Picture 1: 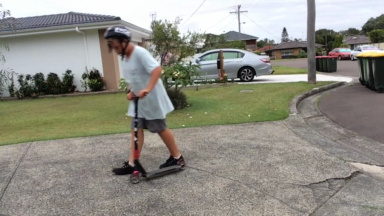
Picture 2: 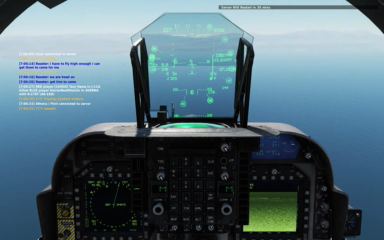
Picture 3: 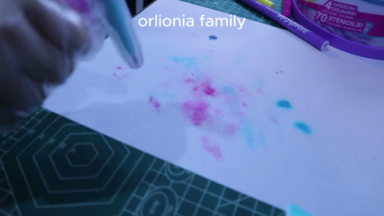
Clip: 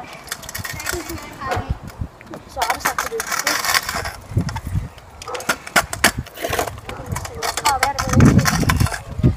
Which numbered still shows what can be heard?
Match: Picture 1